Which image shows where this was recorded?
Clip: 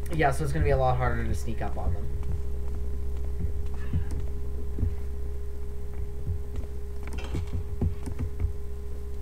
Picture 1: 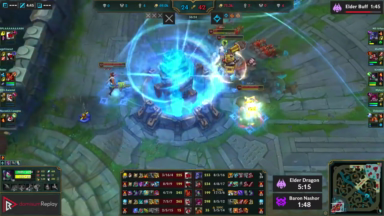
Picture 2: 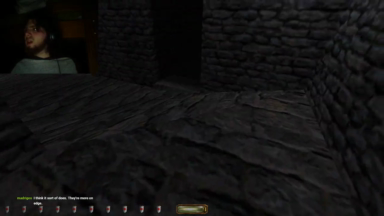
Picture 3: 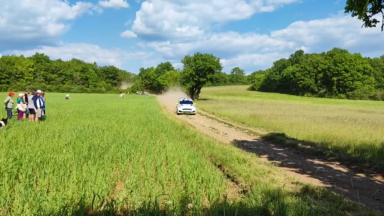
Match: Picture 2